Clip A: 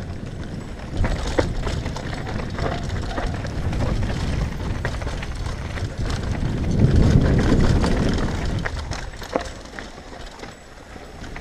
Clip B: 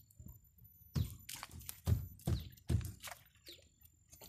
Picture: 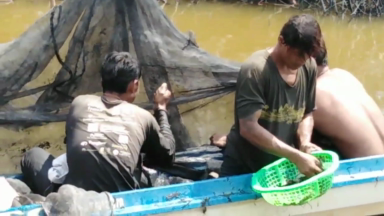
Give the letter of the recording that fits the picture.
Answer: B